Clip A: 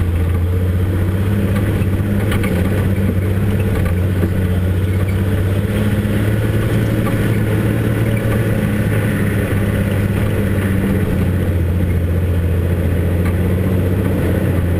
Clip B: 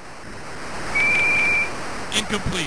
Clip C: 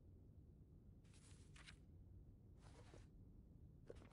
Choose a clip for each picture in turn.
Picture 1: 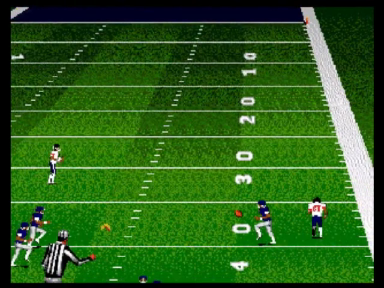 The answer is B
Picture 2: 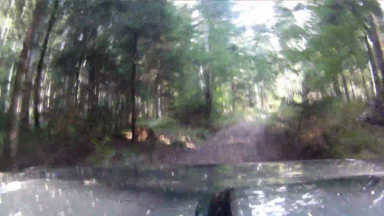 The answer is A